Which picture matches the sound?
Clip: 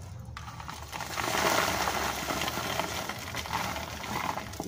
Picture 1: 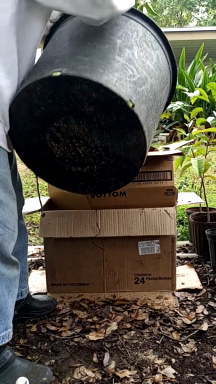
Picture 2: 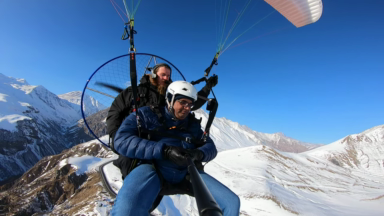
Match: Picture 1